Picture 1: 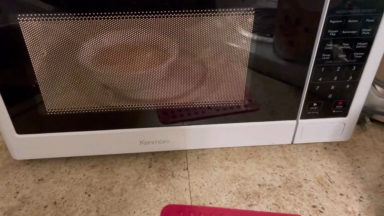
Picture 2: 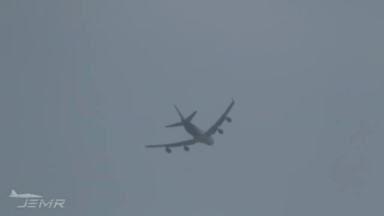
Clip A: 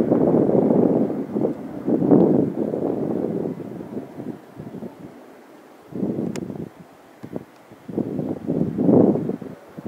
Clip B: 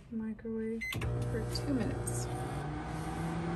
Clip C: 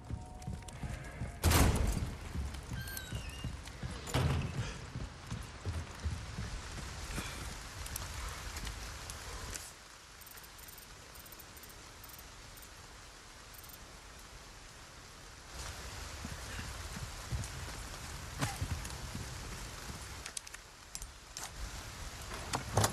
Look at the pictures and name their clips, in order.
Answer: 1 B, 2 A